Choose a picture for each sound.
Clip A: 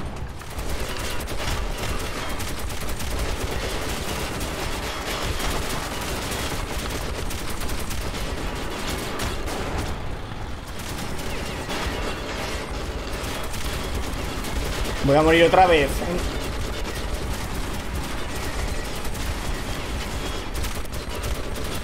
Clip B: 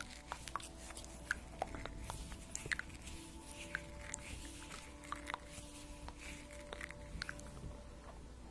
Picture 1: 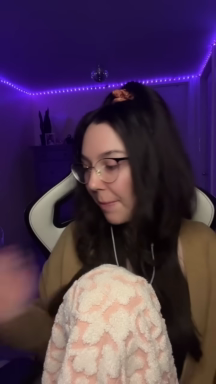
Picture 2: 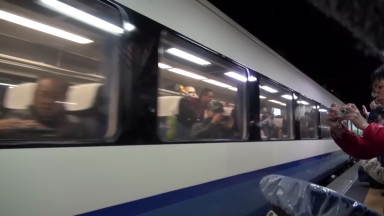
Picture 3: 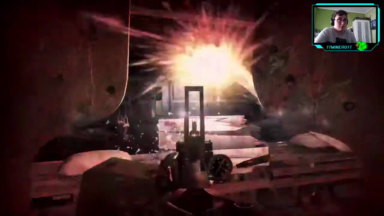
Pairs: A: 3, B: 1